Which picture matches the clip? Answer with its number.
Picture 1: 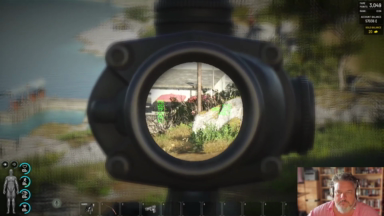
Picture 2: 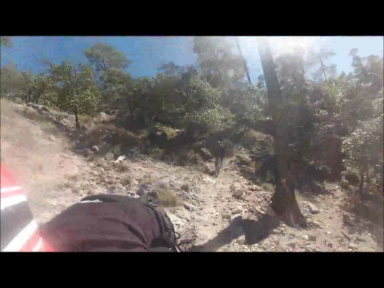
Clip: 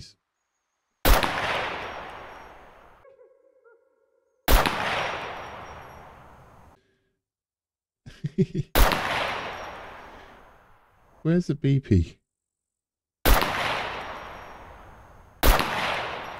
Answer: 1